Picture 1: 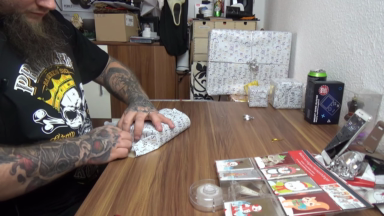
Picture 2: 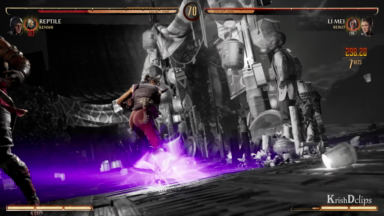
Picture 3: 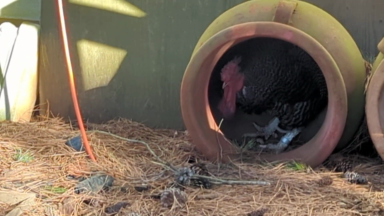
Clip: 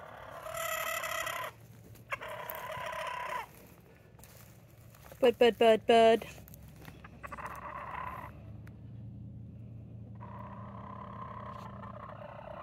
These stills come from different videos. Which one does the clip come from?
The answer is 3